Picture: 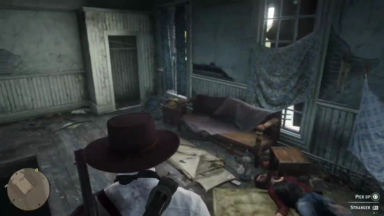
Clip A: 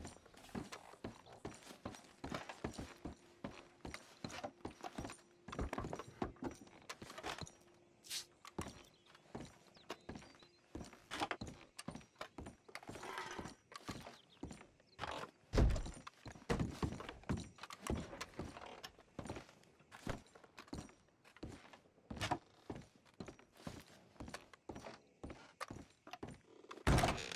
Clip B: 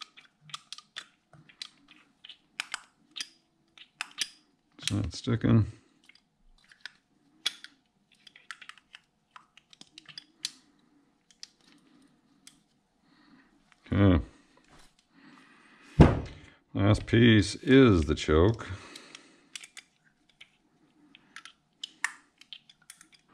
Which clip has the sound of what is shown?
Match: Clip A